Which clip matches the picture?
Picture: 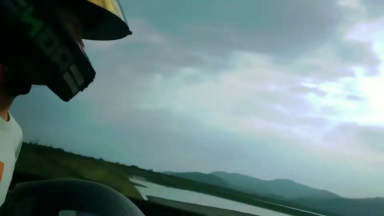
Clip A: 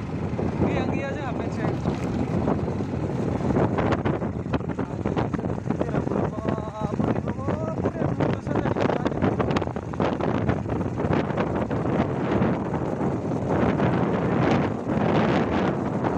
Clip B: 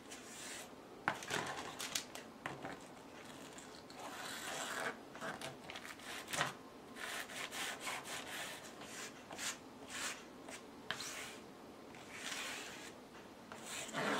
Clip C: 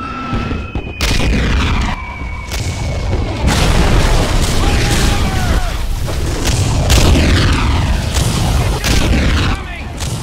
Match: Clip A